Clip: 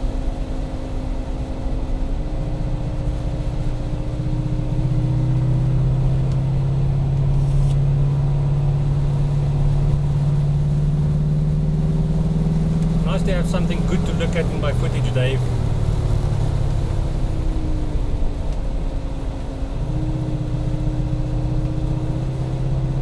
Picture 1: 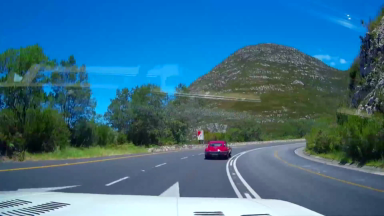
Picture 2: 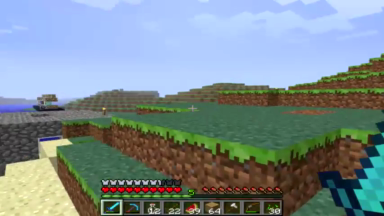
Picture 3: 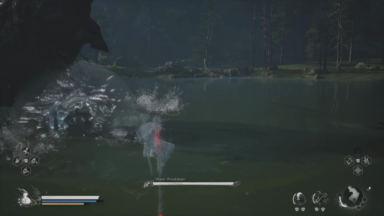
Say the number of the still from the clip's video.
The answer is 1